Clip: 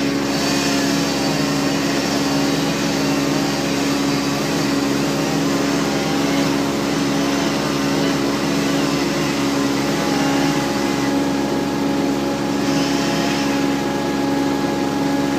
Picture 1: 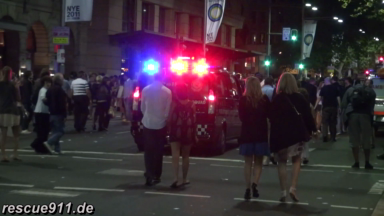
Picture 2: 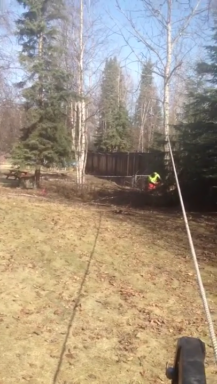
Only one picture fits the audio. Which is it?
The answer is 2